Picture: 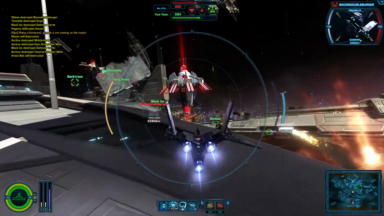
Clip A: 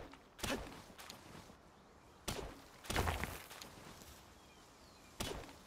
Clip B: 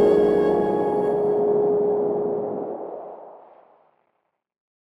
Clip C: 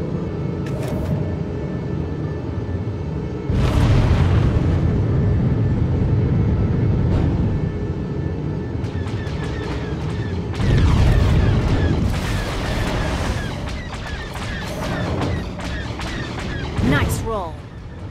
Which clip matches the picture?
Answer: C